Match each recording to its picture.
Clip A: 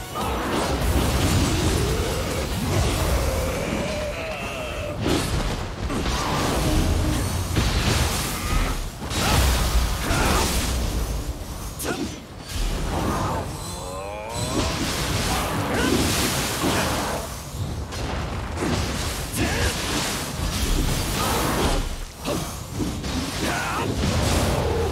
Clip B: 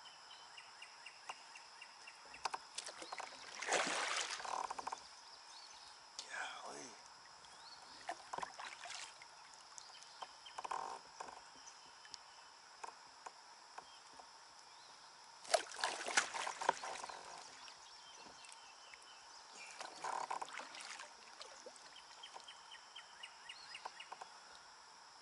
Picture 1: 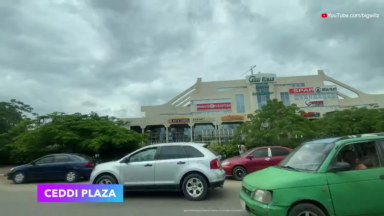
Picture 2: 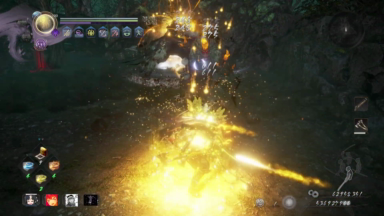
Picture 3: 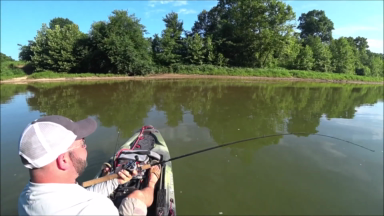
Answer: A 2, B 3